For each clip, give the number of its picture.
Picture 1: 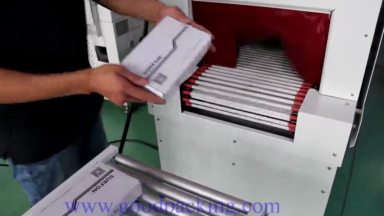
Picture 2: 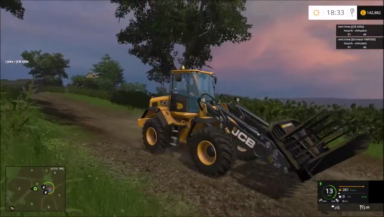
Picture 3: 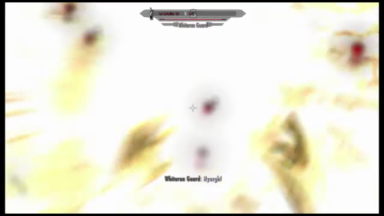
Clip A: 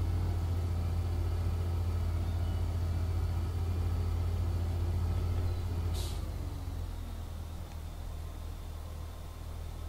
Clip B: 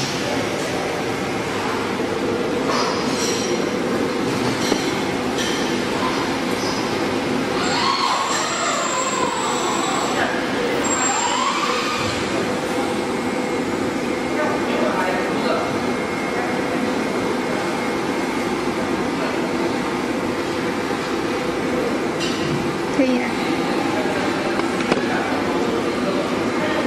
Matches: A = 2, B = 1